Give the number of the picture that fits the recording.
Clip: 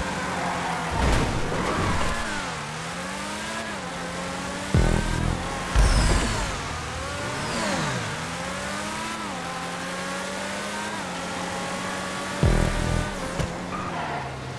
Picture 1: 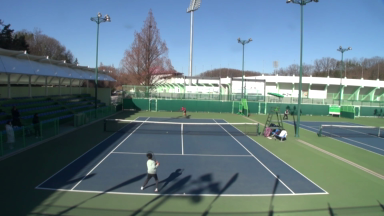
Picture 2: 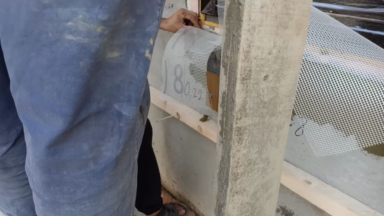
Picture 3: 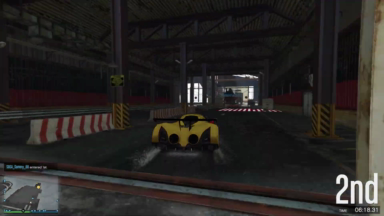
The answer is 3